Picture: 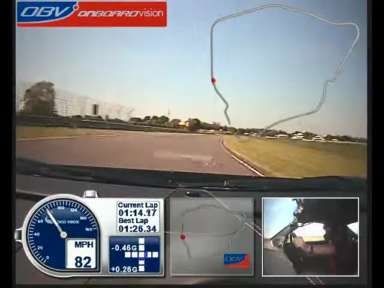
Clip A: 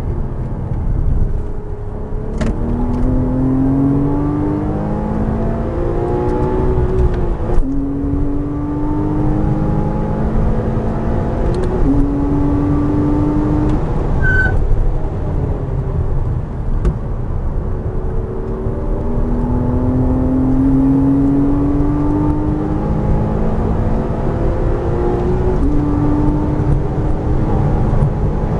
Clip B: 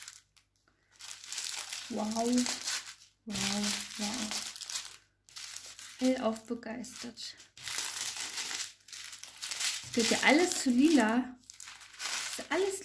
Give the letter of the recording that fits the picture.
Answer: A